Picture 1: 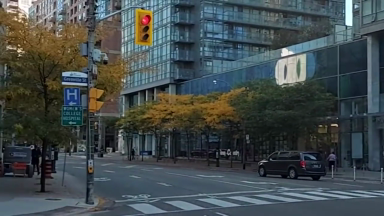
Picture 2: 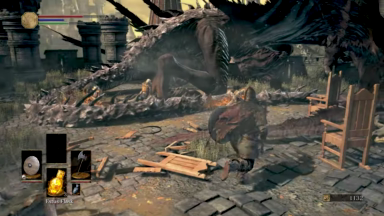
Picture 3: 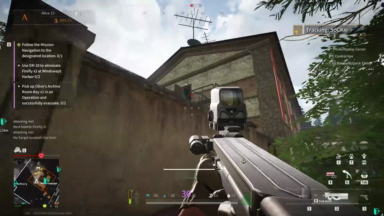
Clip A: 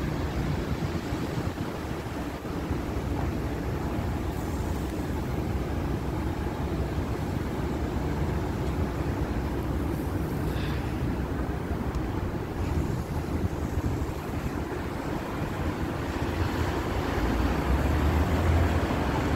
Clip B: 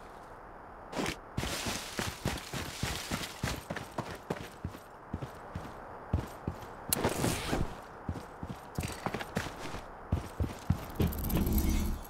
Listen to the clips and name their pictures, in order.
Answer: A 1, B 3